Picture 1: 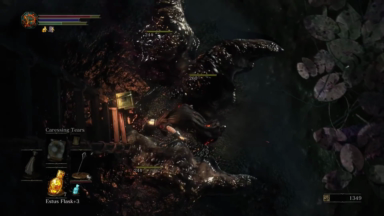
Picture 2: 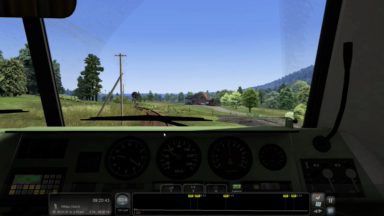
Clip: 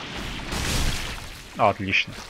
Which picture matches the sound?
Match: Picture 1